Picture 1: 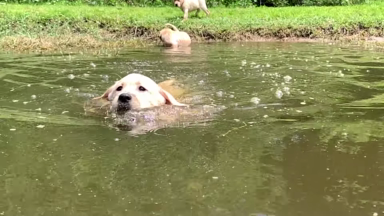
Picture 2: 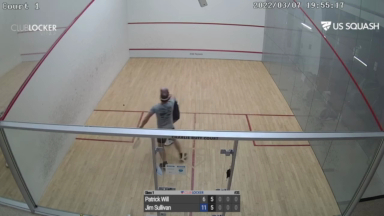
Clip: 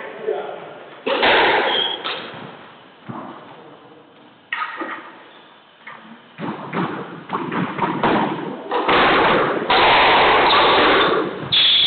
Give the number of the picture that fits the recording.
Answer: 2